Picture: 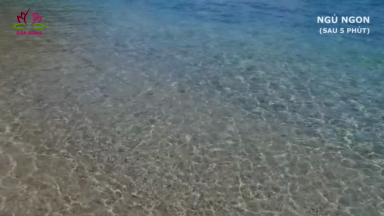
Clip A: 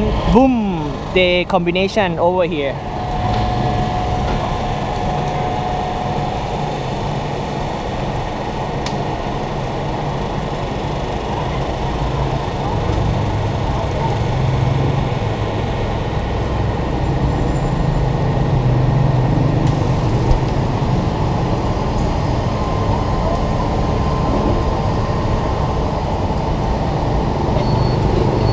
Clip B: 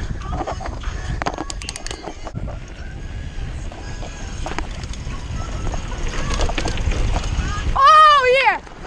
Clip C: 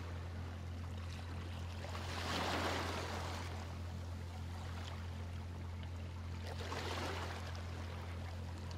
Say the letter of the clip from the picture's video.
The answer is C